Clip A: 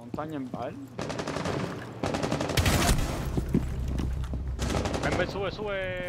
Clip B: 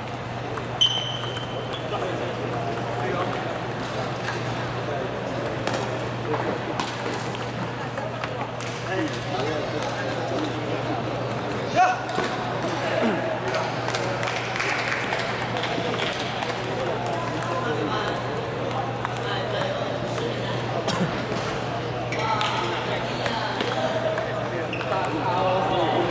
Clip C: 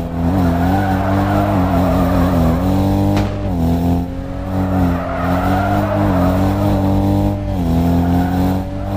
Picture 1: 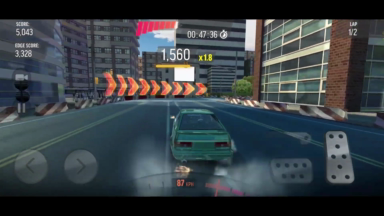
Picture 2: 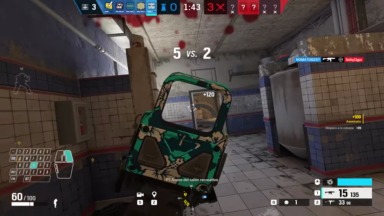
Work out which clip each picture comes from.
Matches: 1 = C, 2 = A